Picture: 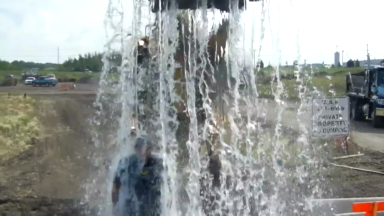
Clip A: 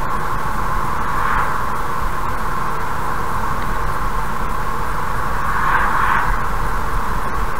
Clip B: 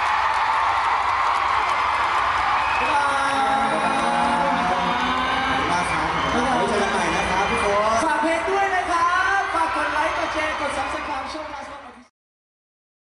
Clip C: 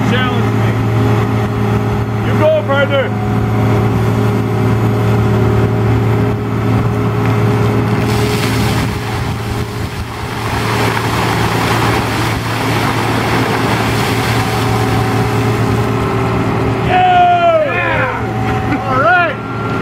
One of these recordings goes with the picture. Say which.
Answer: C